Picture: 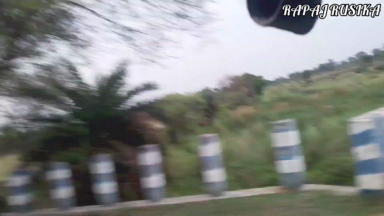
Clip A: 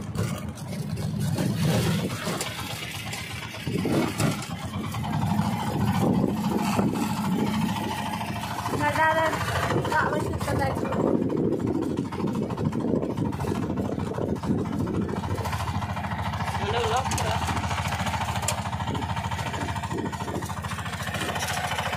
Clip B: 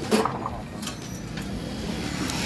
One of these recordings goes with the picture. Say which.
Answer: A